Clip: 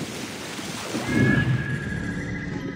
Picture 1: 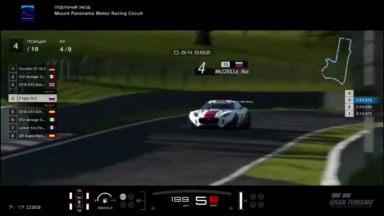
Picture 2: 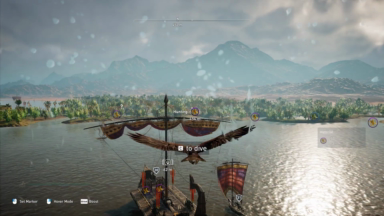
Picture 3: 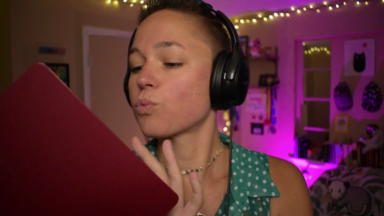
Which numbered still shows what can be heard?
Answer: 2